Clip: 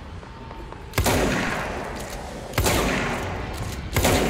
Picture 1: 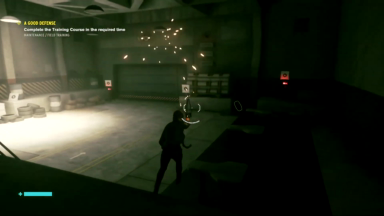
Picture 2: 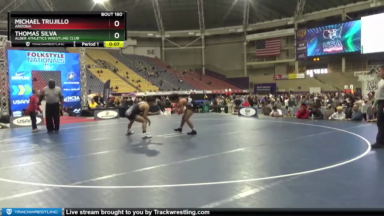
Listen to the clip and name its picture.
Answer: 1